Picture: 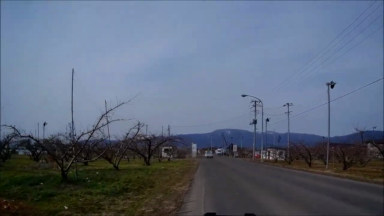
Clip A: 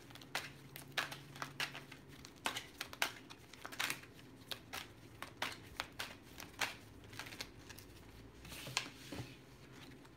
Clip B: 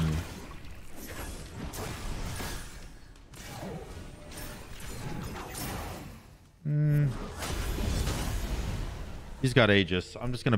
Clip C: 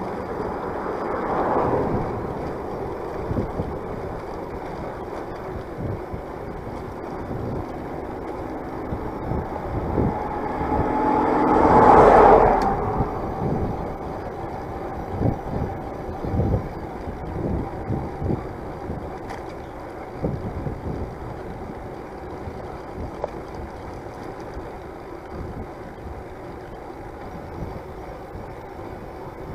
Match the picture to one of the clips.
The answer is C